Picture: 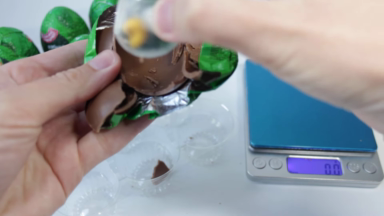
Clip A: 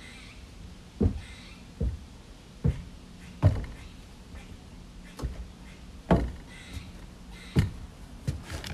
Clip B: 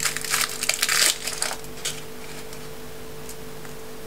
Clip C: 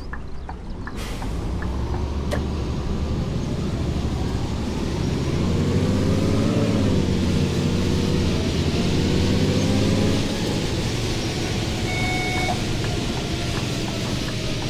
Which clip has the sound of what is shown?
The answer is B